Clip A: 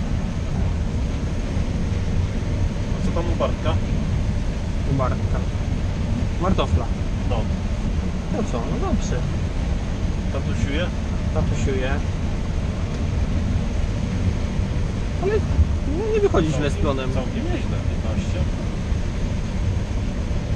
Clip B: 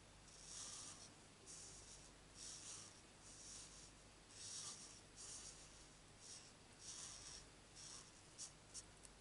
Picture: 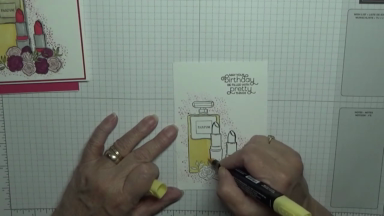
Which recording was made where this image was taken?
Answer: B